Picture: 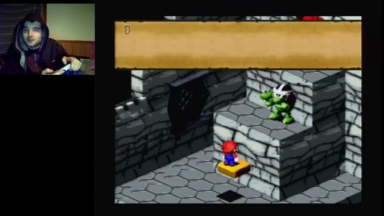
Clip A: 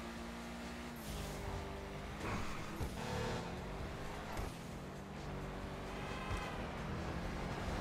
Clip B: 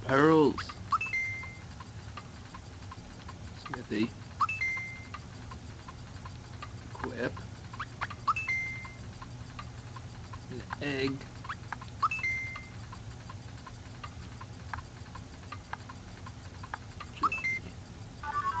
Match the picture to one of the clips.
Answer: B